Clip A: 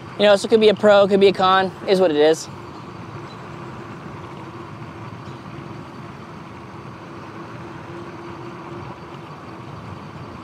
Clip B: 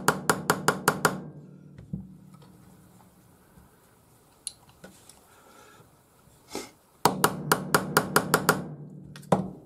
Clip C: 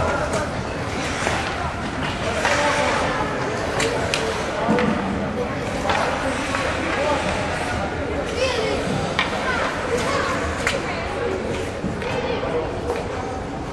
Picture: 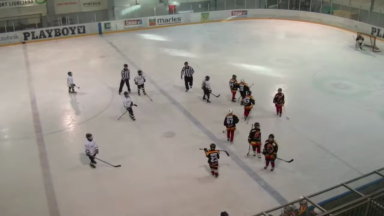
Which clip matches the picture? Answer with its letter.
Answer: C